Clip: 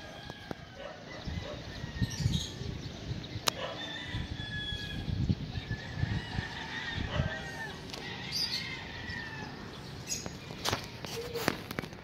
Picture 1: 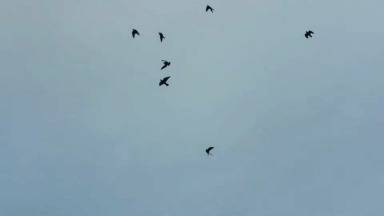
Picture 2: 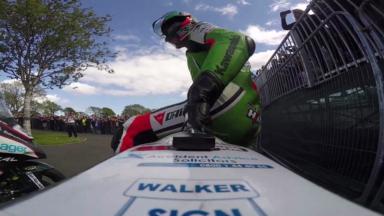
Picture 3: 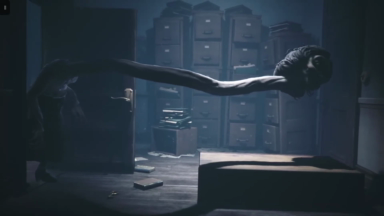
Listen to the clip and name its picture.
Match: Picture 1